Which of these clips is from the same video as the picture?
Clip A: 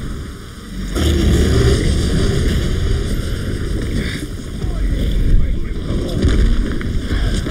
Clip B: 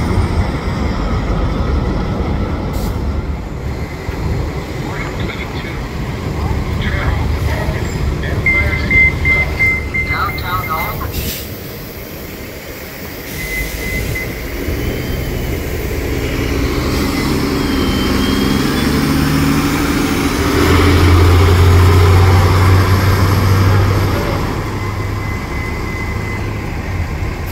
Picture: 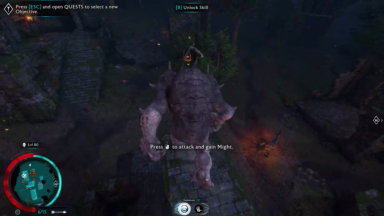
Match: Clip A